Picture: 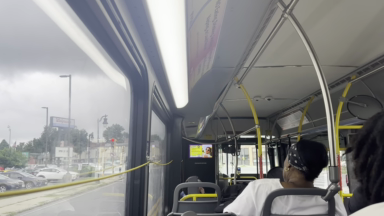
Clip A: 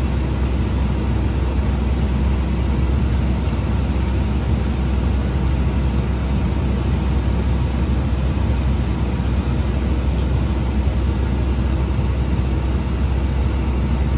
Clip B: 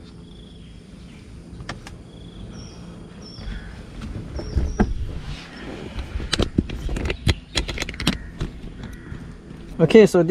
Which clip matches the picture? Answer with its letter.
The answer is A